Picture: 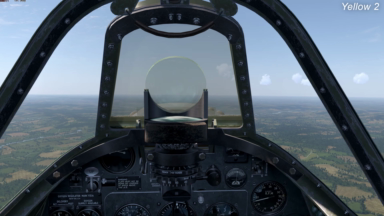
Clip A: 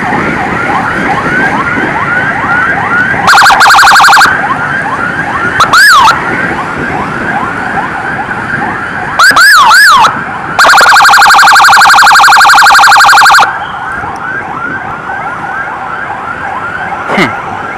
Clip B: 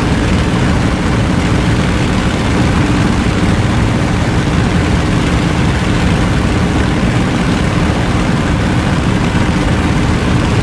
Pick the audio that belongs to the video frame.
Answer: B